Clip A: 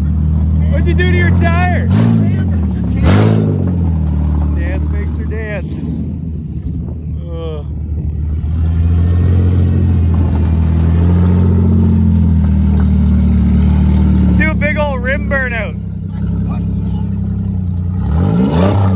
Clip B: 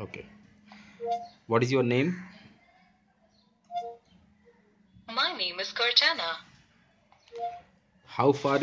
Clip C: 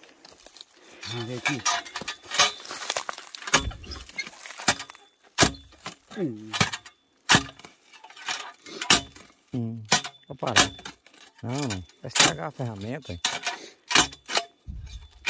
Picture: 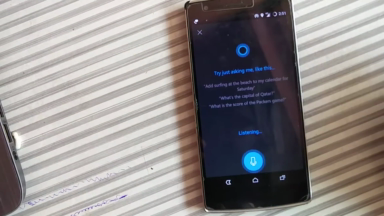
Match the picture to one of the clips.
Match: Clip B